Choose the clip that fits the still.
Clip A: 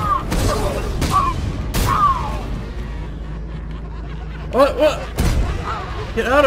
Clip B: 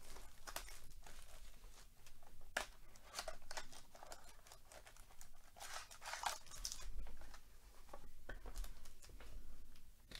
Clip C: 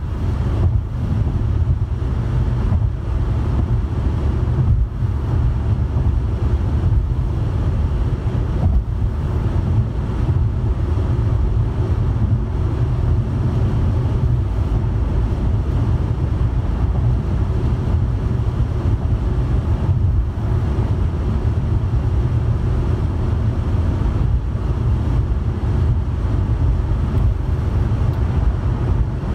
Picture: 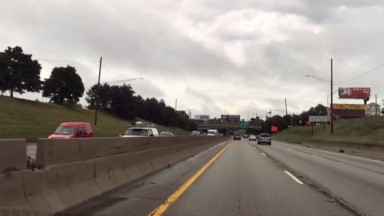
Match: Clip C